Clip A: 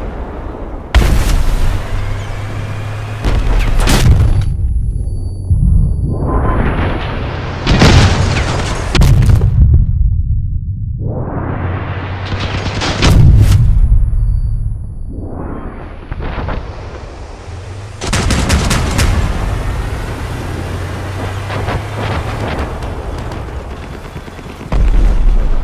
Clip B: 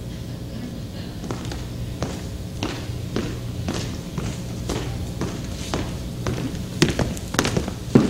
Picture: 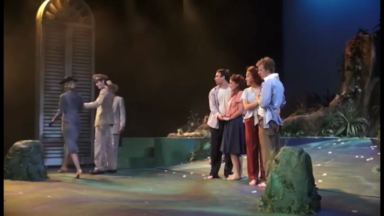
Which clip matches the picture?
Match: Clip B